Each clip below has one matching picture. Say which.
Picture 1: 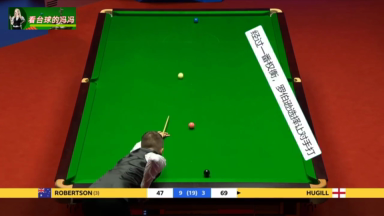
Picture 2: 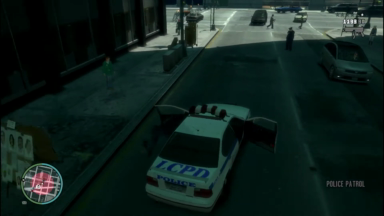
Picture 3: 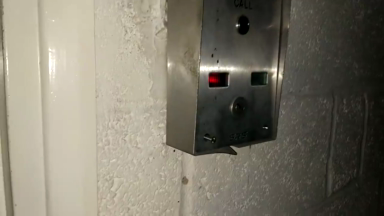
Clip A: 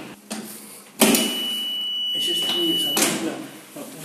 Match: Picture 3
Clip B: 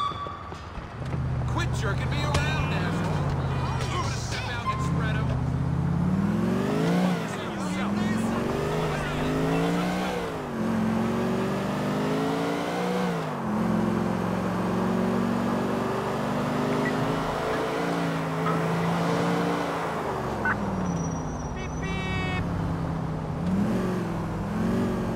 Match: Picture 2